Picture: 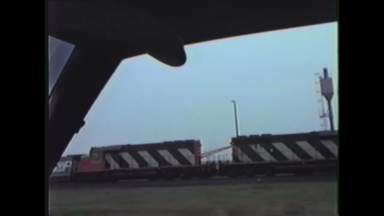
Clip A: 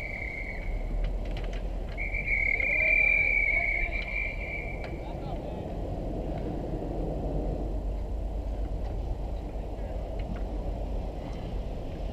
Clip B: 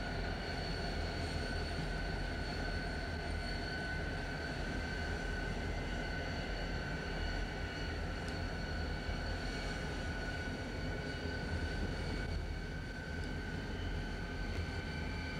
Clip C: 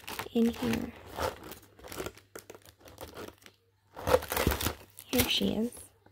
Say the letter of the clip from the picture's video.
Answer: B